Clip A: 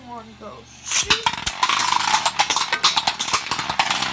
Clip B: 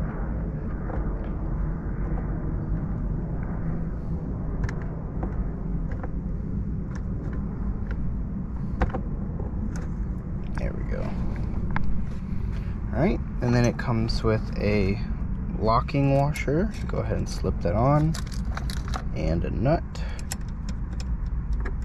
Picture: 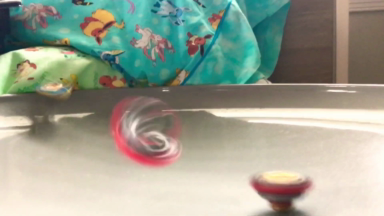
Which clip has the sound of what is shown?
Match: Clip A